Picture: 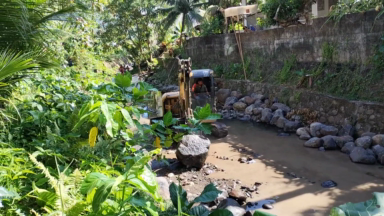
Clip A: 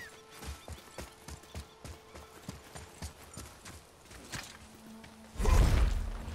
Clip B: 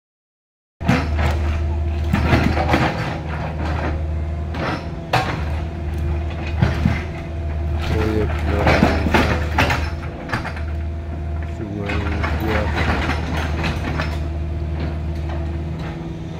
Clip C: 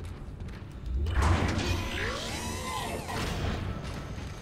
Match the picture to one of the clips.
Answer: B